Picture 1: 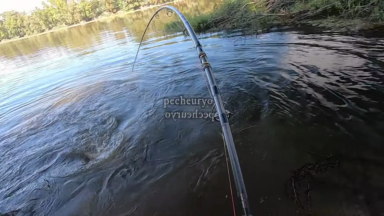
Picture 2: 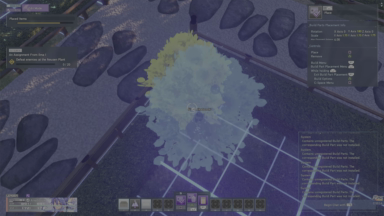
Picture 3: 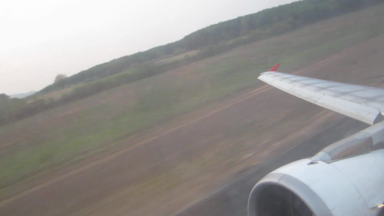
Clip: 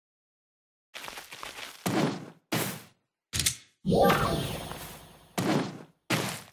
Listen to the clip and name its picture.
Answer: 2